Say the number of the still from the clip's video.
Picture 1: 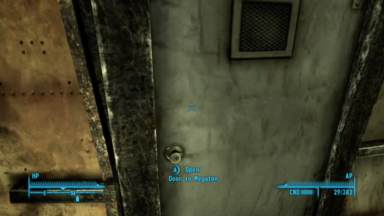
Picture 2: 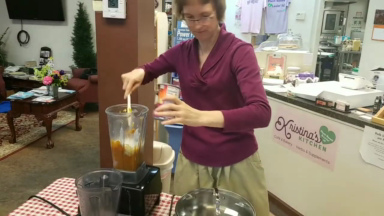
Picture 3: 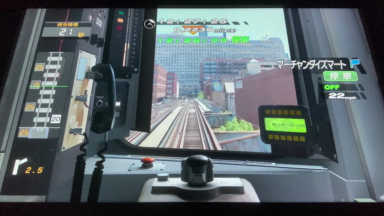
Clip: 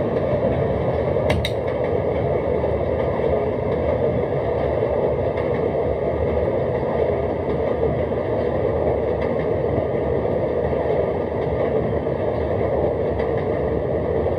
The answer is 3